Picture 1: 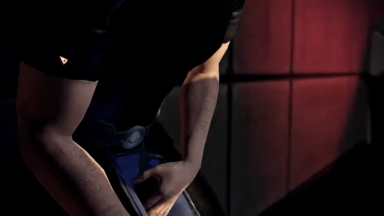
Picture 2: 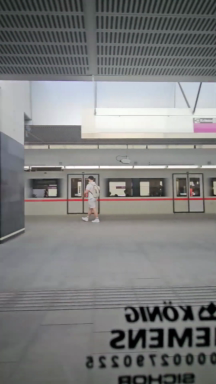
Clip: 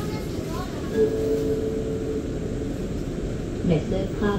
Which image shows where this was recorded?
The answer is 2